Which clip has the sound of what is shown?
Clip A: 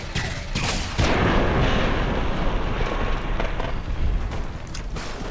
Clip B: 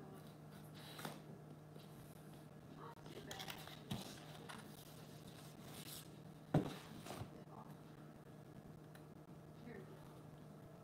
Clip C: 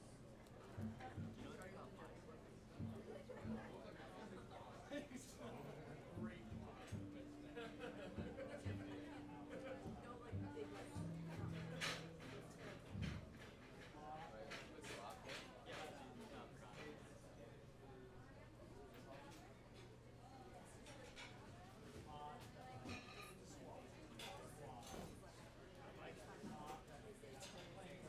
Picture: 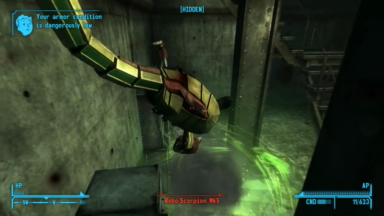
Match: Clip A